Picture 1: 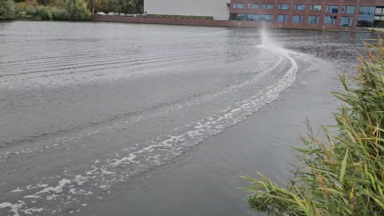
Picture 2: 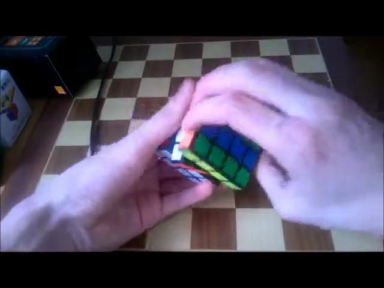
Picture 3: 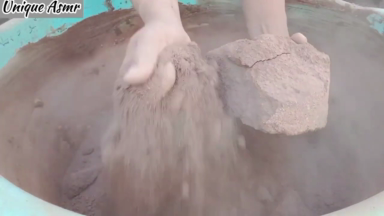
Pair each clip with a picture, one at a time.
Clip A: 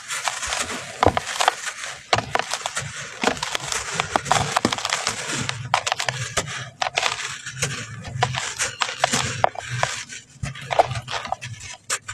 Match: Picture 3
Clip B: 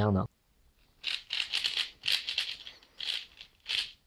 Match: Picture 2